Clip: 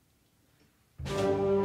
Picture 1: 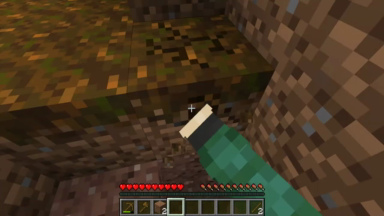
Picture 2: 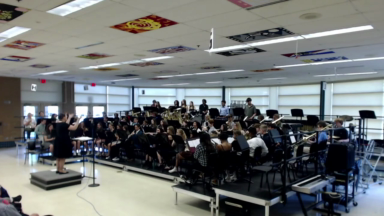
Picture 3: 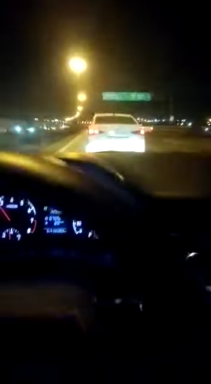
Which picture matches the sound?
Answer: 2